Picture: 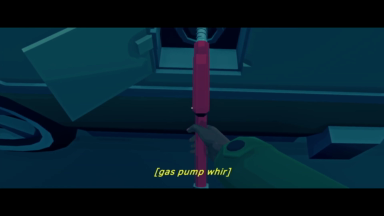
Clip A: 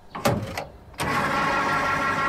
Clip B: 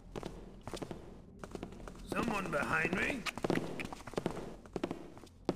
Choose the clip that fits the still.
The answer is A